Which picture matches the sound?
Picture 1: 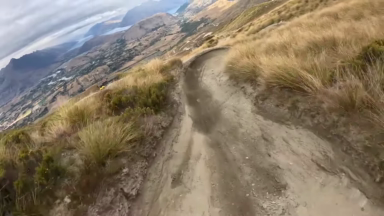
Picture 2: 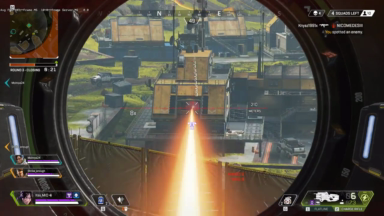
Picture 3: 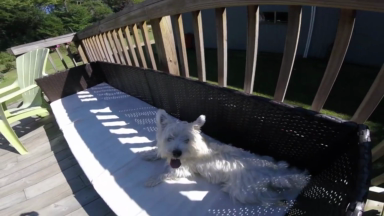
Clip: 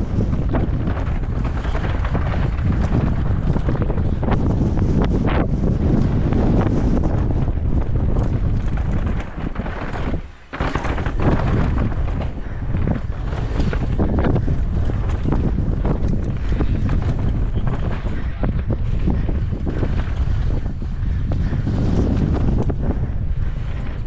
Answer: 1